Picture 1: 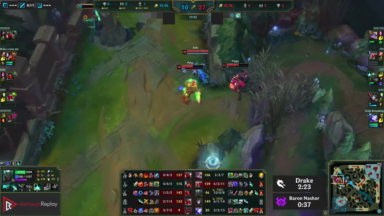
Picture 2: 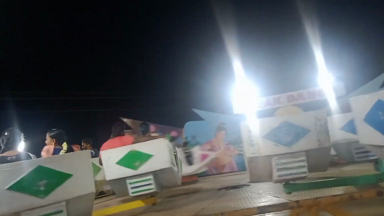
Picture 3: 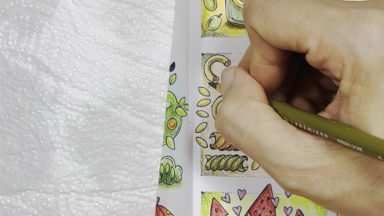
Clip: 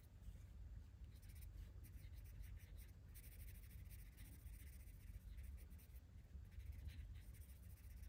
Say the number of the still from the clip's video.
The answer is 3